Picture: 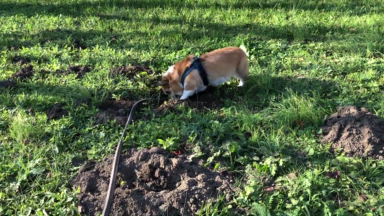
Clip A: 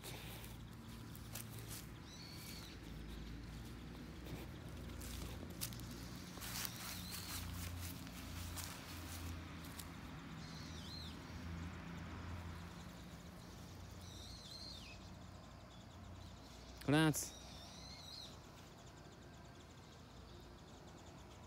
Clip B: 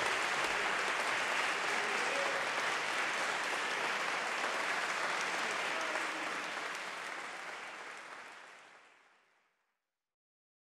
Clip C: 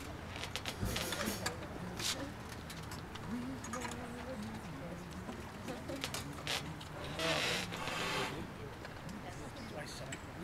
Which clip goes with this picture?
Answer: A